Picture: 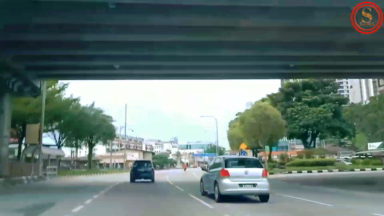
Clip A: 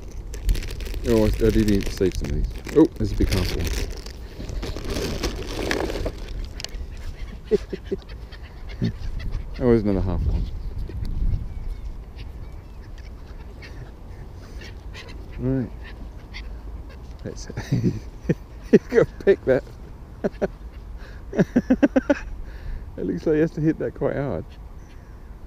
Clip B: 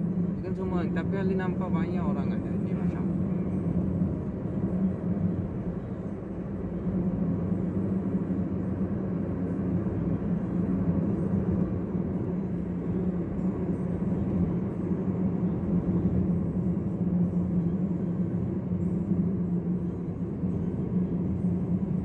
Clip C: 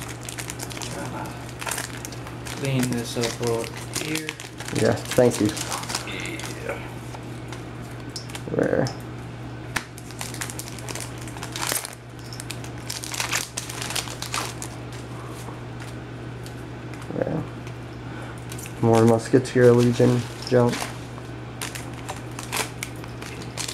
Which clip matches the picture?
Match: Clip B